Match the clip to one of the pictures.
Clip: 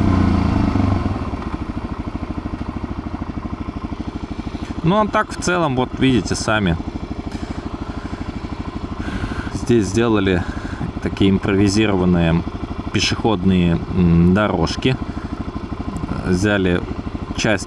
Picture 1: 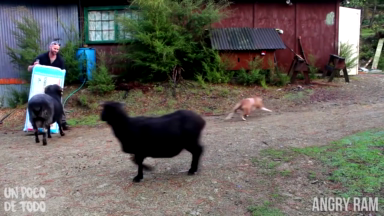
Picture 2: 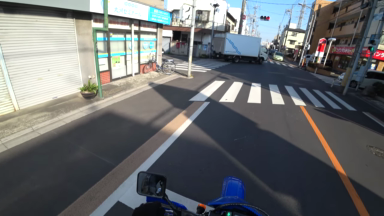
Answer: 2